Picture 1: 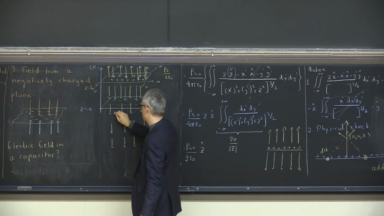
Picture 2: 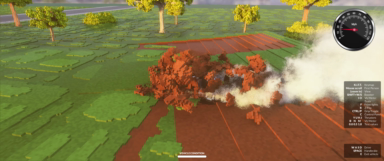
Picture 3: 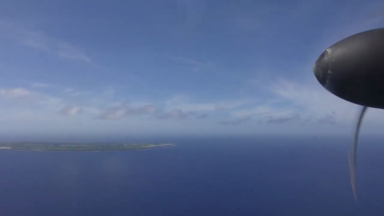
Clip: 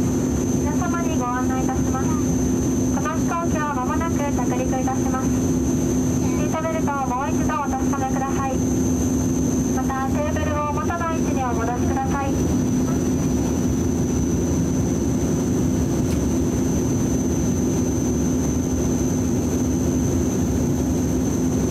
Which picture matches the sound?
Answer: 3